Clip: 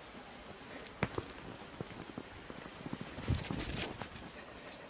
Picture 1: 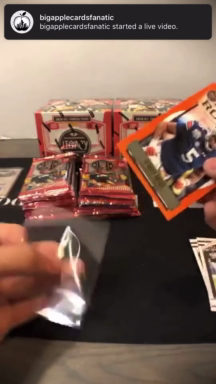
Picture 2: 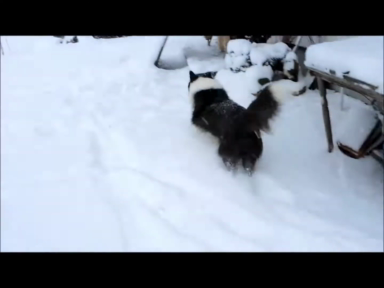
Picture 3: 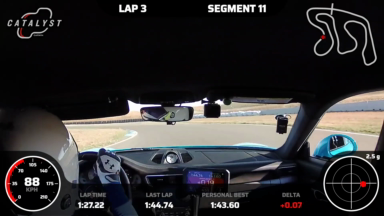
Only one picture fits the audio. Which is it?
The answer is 2